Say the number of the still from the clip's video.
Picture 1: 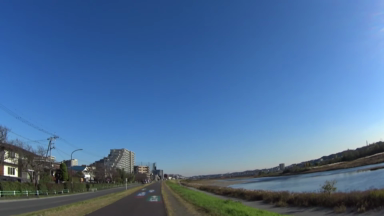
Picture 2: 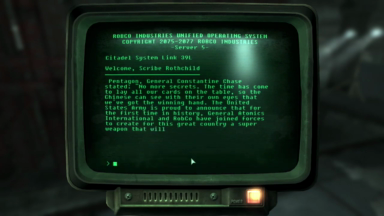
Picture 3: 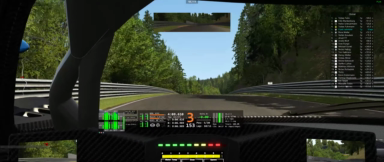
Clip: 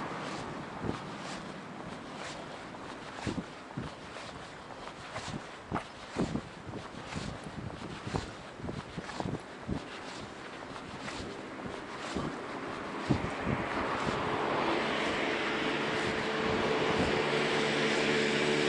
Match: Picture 1